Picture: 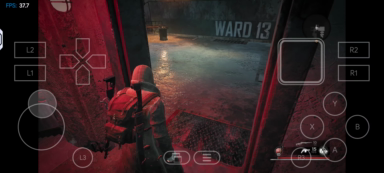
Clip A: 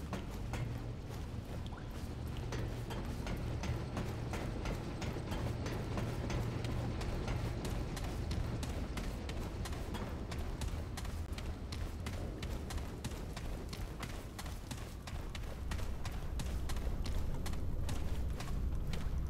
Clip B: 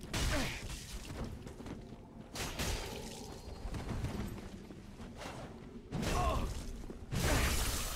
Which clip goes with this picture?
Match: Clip A